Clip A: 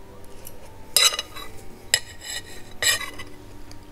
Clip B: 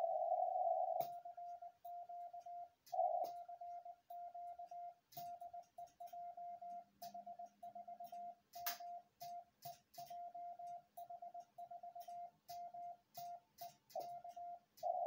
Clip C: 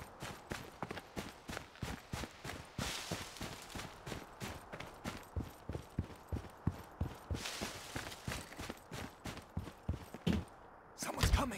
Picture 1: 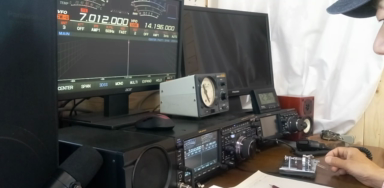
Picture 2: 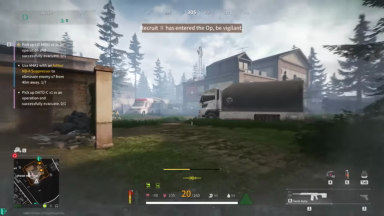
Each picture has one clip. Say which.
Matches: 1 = B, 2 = C